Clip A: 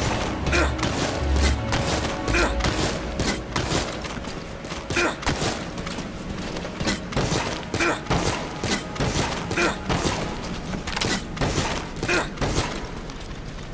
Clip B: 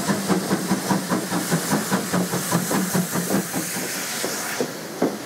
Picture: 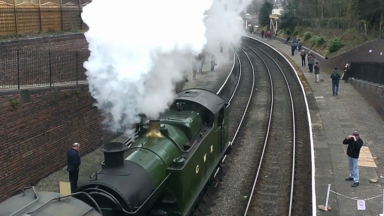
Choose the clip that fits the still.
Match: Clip B